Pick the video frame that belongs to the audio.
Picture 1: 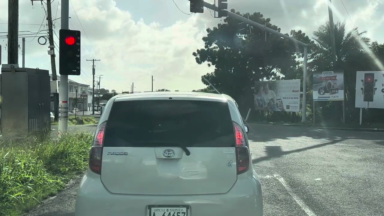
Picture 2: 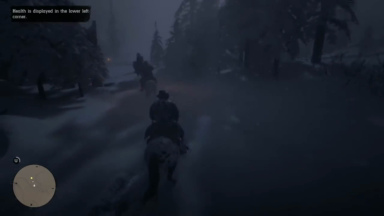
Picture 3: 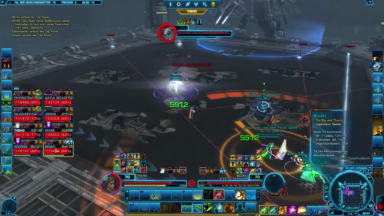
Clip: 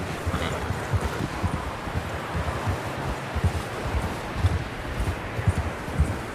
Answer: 2